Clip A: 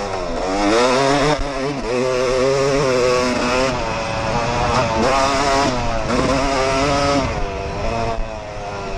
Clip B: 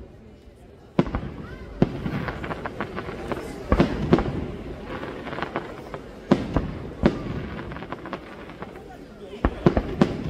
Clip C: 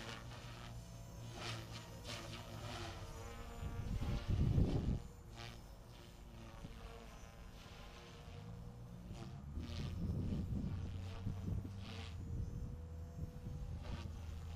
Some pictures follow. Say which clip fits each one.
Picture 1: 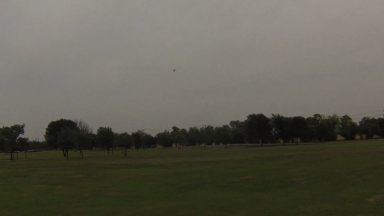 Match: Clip C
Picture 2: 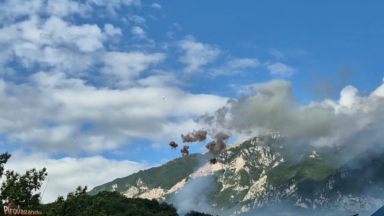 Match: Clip B